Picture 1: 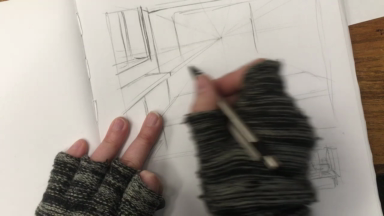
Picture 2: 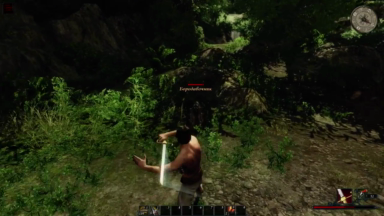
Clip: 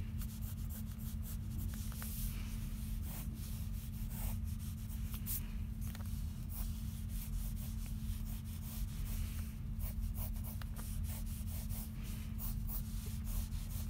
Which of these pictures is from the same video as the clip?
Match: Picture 1